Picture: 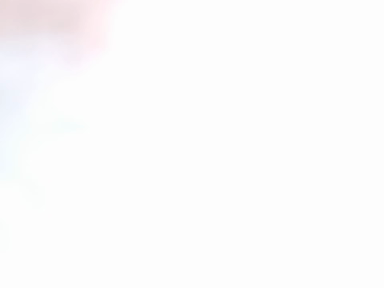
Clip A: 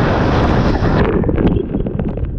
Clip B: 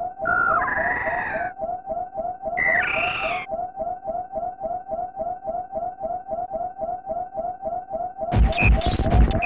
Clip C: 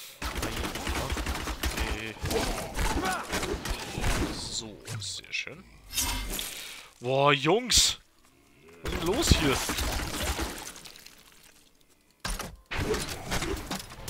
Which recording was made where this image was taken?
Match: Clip A